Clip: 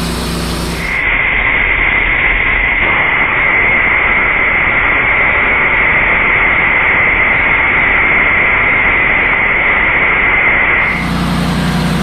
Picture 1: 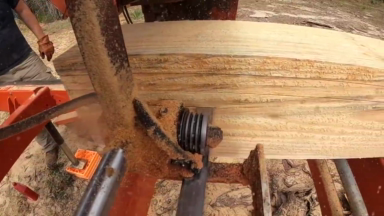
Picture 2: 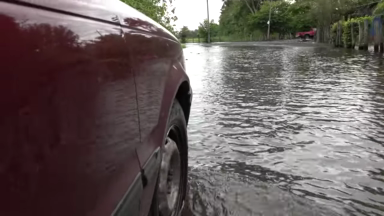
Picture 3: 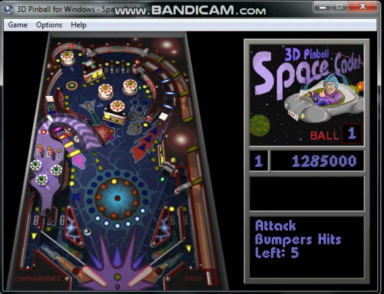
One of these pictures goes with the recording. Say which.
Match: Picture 1